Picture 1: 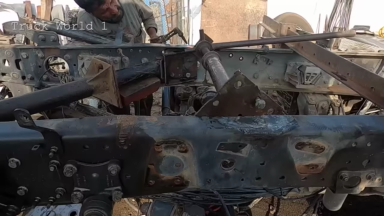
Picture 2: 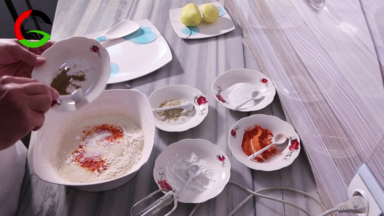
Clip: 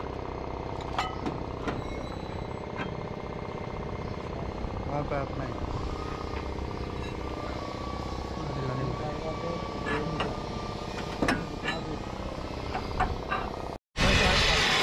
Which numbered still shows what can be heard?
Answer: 1